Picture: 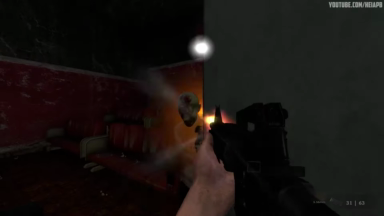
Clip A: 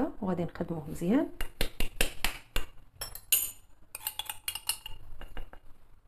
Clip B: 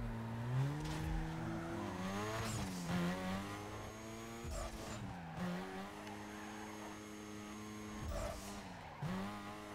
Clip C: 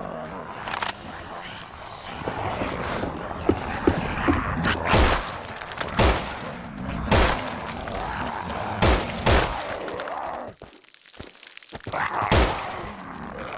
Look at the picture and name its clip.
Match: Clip C